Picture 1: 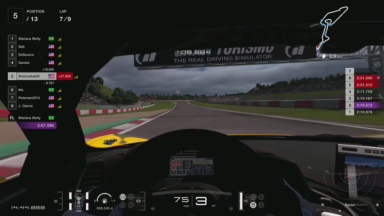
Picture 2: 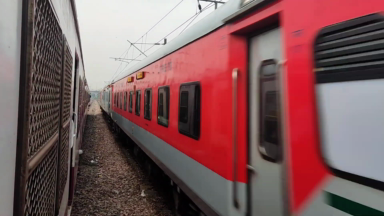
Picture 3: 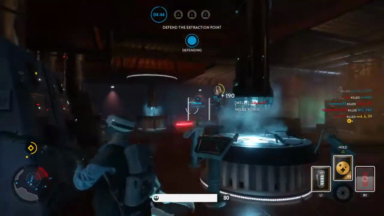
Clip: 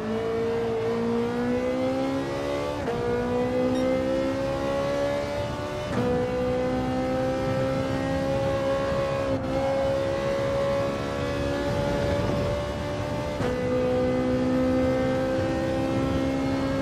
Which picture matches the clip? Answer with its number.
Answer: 1